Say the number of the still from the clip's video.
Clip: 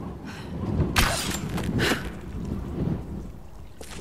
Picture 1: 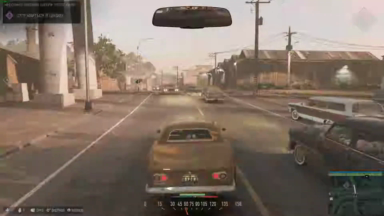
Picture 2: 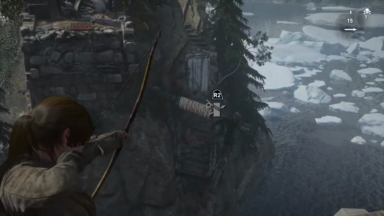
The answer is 2